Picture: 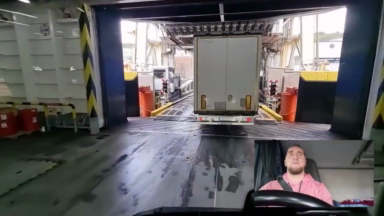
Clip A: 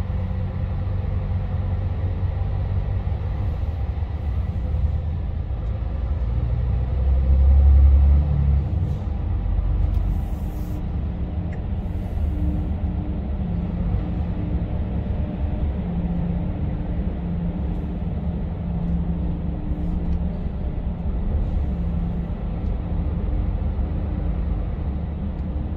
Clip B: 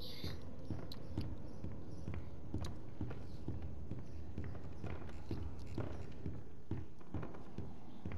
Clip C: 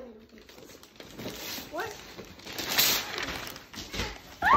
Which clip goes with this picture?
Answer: A